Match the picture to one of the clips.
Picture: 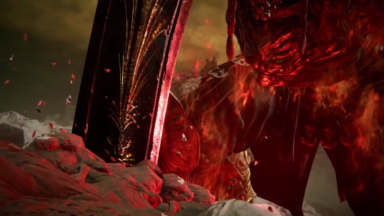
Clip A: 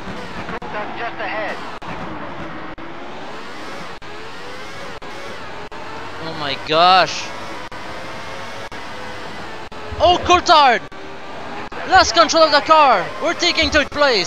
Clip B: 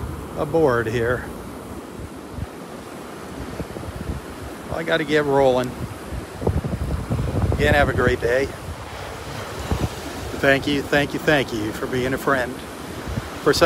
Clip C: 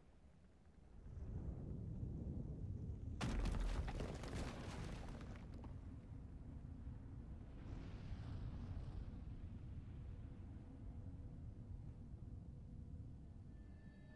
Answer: C